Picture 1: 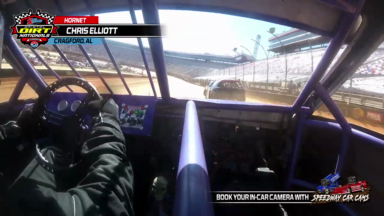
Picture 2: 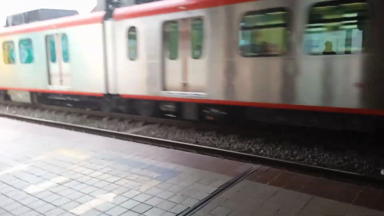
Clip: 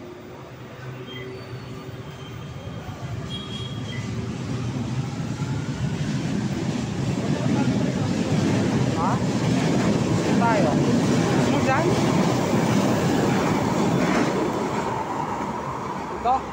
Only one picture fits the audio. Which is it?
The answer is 2